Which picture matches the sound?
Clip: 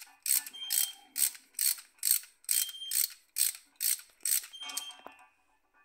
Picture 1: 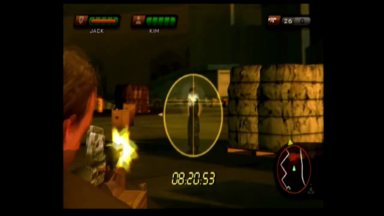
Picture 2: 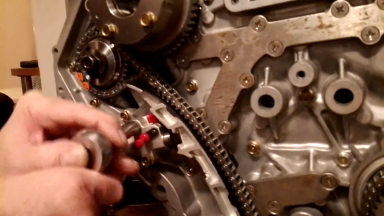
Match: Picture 2